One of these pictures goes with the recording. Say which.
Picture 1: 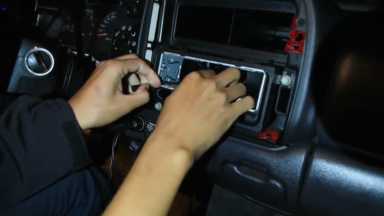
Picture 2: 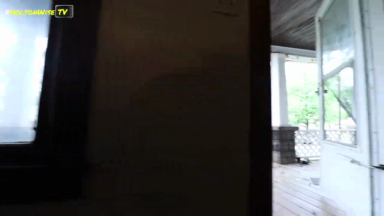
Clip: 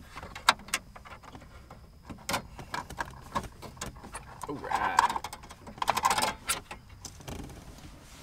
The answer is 1